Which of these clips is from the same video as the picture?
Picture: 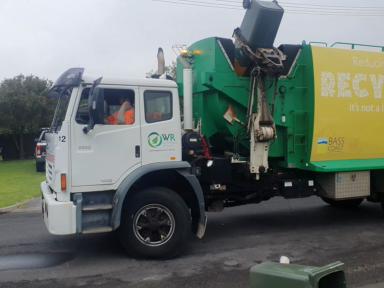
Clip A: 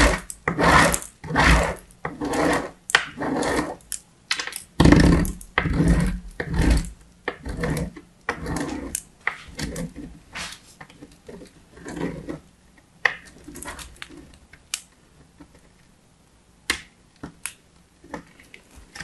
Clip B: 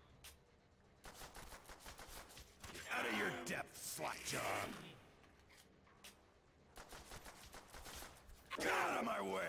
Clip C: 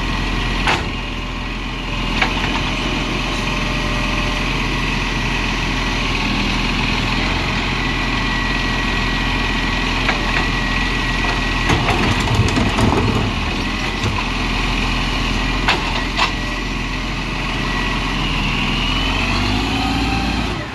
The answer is C